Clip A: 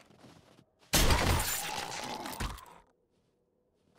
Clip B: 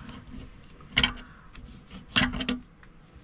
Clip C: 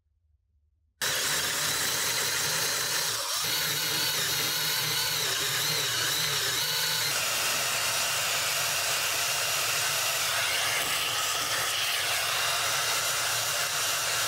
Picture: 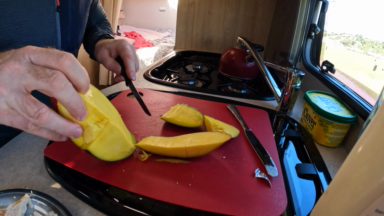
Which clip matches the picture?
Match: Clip B